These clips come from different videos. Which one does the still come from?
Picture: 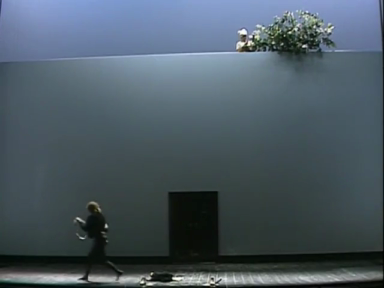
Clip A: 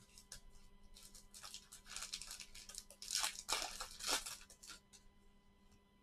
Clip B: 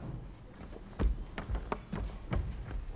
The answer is B